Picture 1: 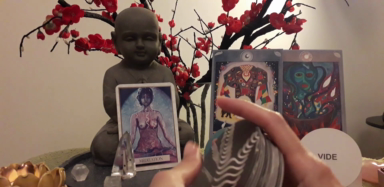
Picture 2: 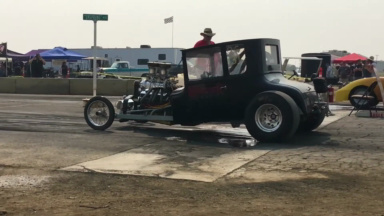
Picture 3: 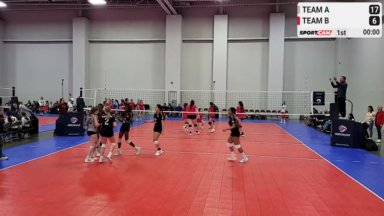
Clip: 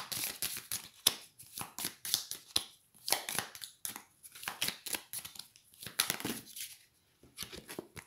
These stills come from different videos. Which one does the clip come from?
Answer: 1